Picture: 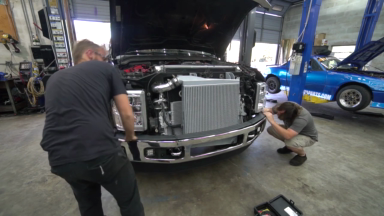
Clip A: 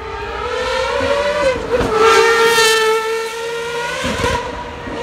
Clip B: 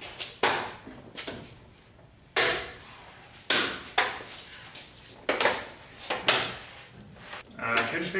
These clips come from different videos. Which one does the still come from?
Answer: B